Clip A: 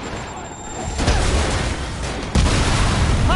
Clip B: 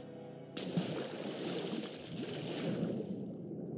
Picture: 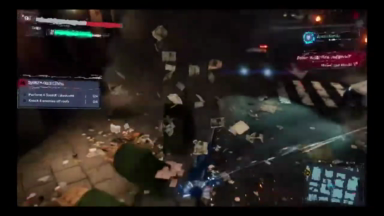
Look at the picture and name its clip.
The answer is A